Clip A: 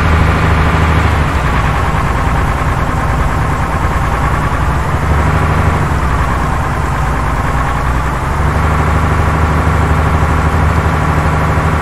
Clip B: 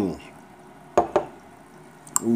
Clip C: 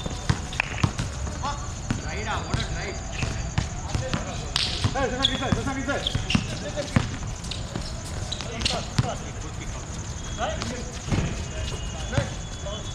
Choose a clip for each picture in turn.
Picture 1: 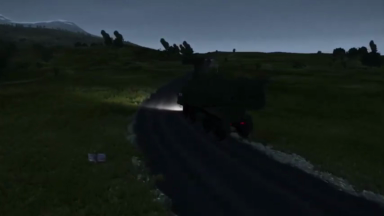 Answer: A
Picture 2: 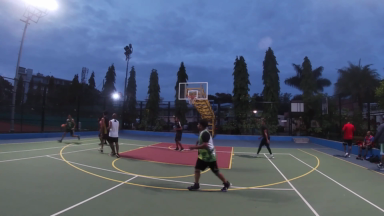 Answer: C